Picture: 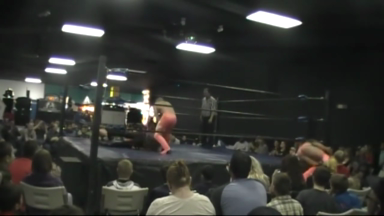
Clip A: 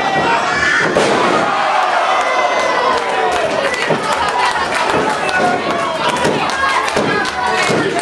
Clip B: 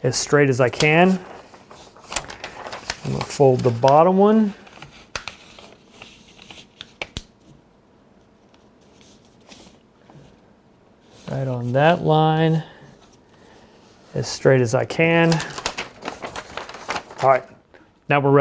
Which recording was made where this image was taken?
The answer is A